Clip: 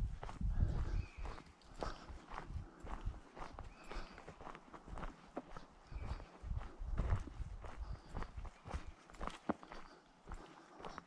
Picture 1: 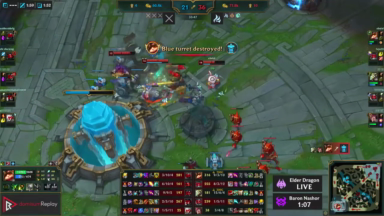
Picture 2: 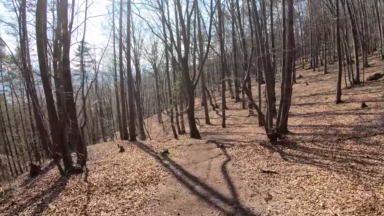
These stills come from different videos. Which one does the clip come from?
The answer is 2